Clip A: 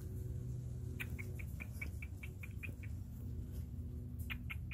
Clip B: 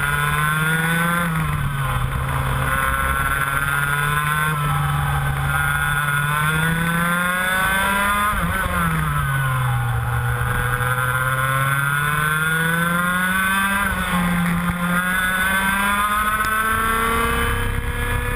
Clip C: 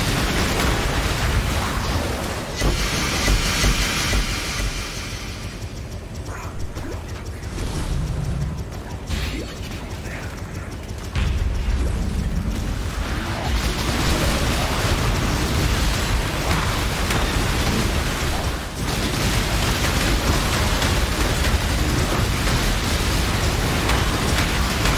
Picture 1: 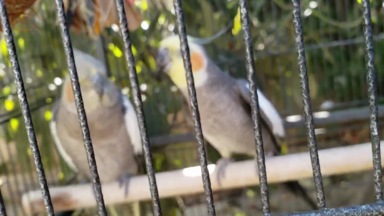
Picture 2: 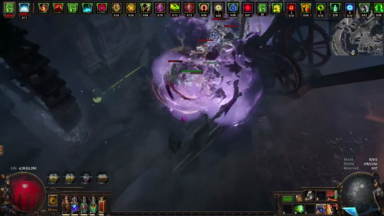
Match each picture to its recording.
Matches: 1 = A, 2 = C